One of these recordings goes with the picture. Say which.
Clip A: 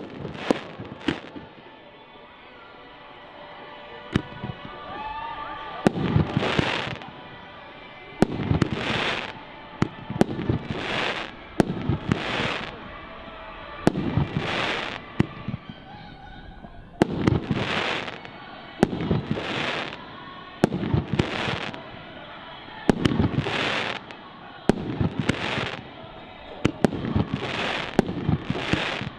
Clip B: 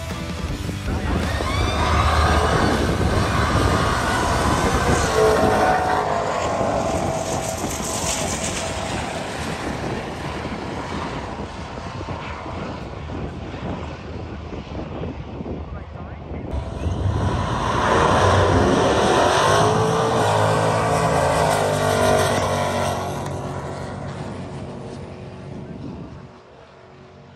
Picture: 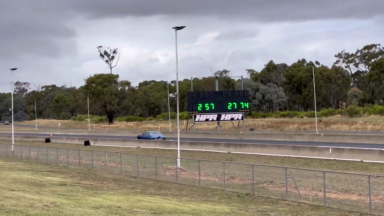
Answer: B